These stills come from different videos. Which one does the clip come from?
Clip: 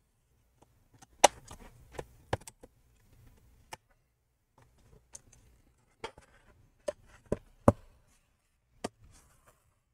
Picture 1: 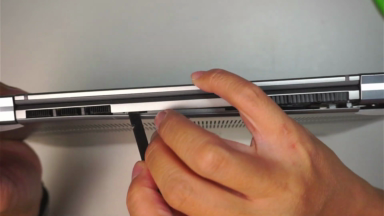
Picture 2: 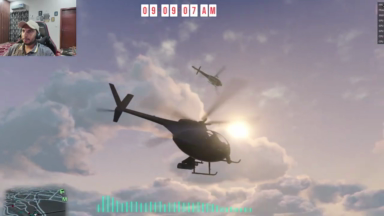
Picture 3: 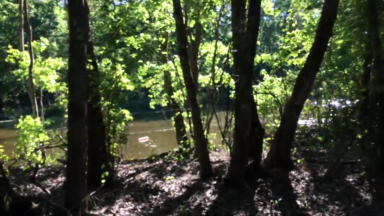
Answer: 1